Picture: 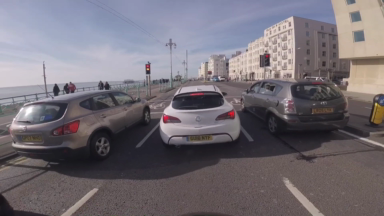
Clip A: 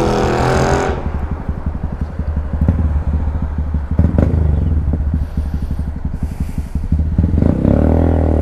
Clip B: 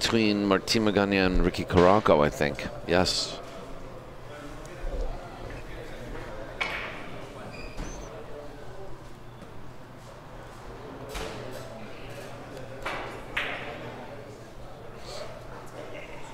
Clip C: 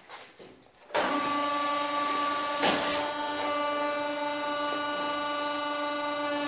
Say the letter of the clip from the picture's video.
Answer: A